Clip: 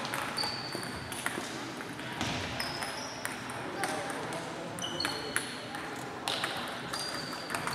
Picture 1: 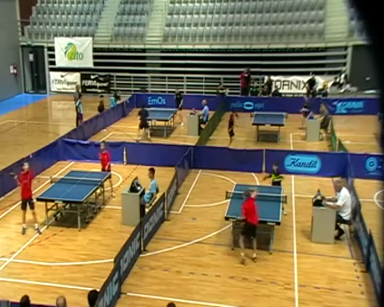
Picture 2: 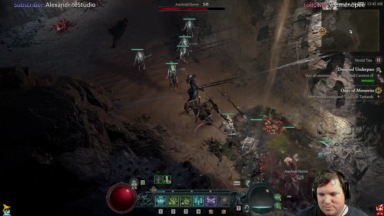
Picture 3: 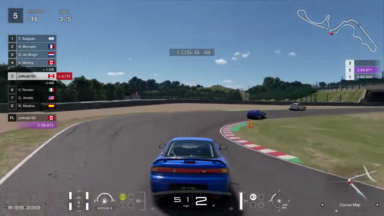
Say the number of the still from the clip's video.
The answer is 1